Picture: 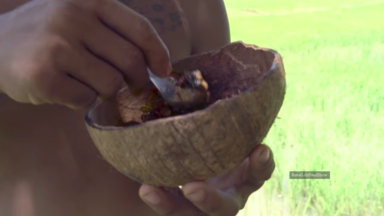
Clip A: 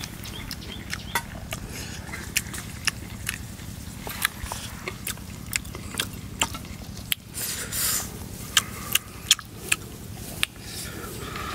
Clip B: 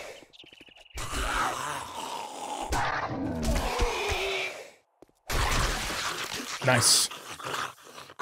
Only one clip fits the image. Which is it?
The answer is A